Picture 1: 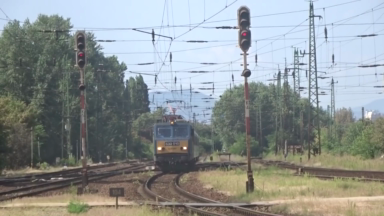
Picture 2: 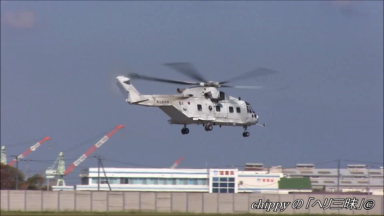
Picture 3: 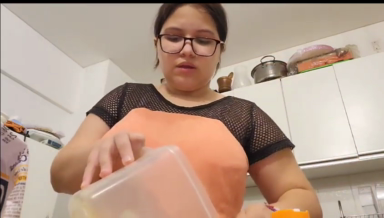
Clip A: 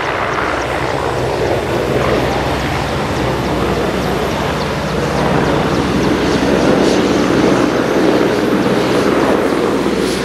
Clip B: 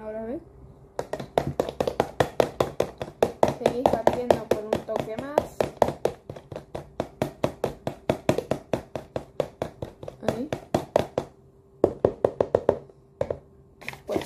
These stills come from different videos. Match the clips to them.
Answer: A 2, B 3